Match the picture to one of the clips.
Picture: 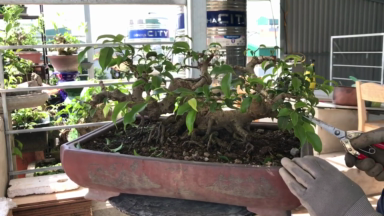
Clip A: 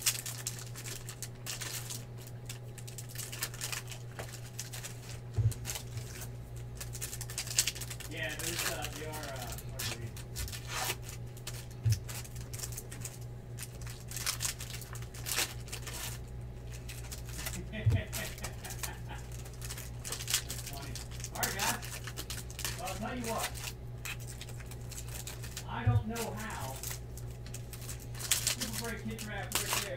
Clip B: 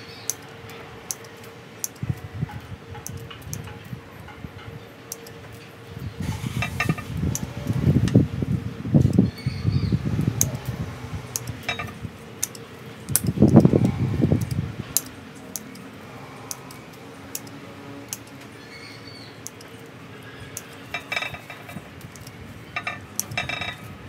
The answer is B